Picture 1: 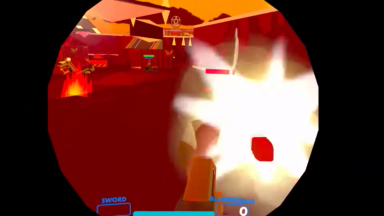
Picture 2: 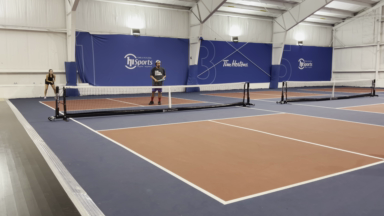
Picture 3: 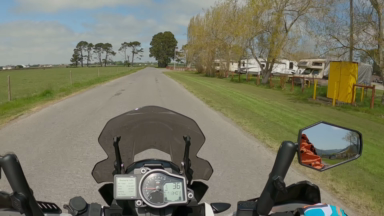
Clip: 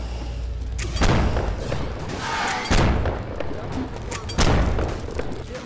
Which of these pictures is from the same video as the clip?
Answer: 1